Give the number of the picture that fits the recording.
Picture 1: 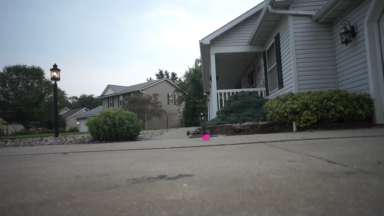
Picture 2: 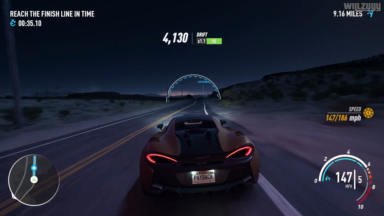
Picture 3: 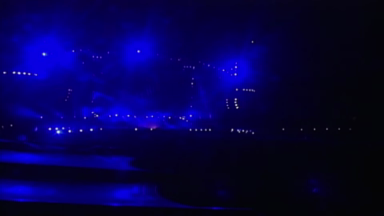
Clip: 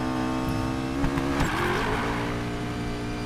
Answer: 2